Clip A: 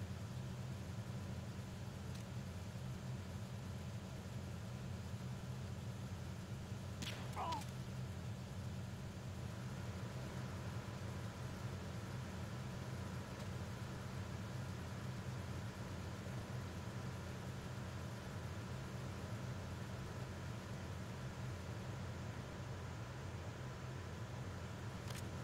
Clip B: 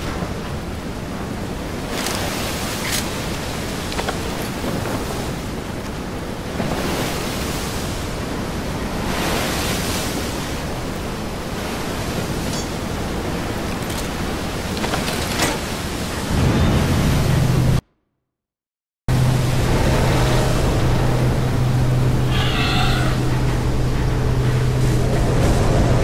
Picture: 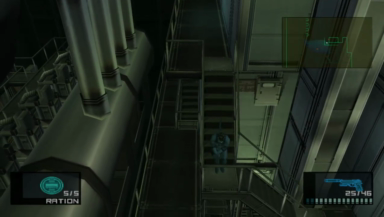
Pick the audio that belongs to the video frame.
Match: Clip A